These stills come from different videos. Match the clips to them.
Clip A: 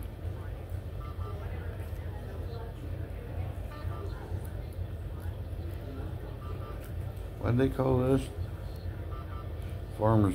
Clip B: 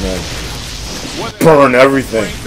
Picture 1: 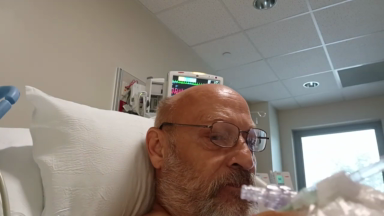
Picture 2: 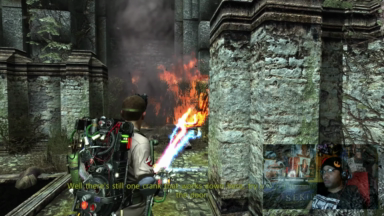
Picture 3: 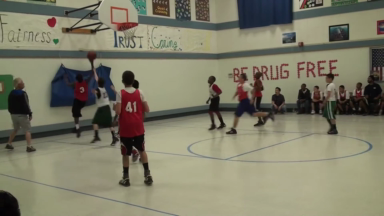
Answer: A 1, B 2